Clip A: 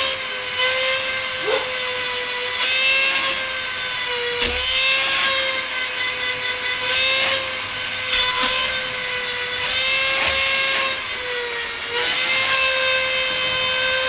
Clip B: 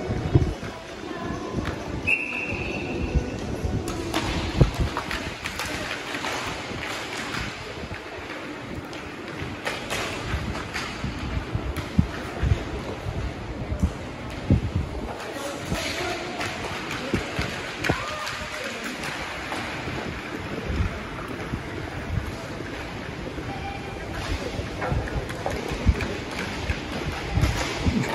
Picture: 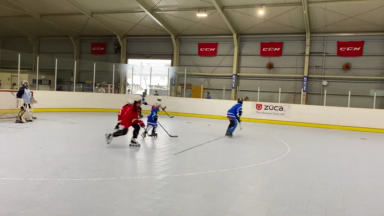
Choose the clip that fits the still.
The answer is B